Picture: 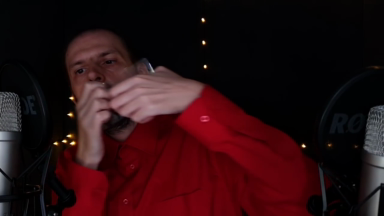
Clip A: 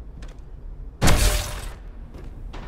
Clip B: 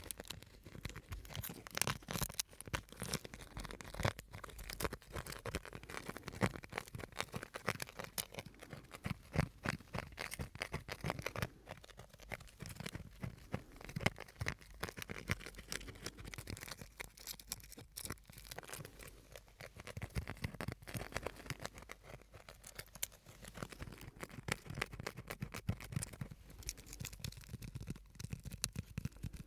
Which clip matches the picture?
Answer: B